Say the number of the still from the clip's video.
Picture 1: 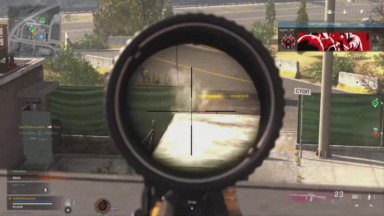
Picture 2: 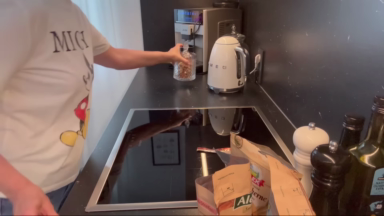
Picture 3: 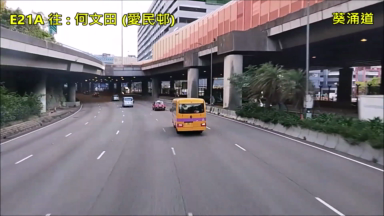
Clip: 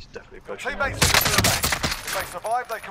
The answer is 1